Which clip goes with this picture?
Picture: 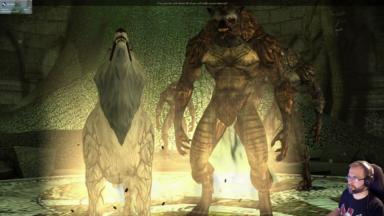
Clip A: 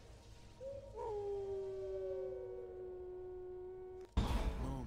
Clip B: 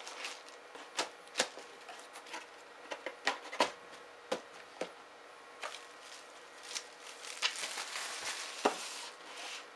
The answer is A